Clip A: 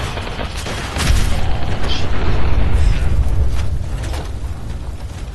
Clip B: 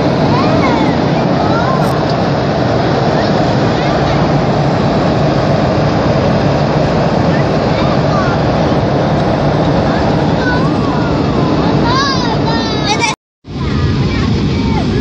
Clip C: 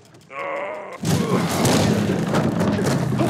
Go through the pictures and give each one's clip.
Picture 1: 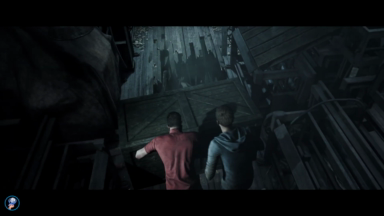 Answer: C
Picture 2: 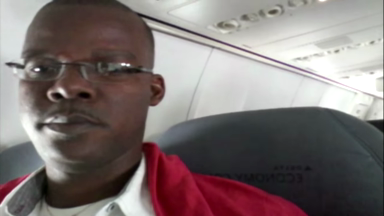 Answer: B